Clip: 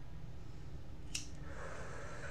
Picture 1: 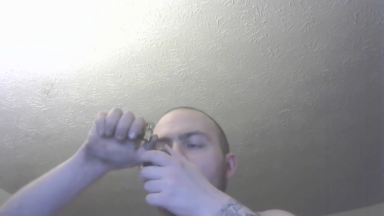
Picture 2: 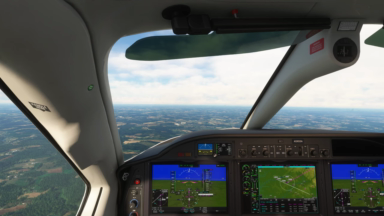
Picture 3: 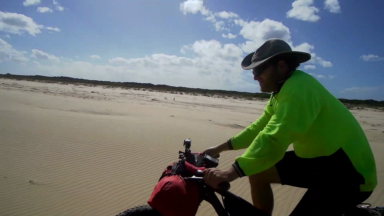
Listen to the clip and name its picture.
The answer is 1